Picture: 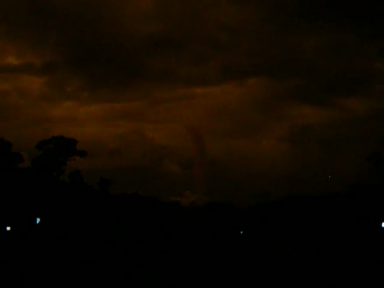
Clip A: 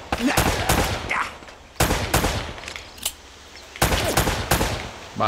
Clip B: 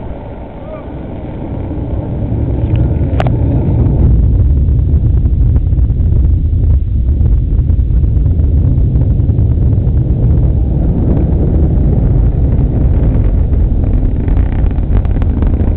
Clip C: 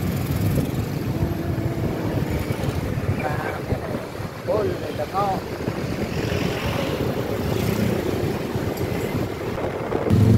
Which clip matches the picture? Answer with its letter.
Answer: B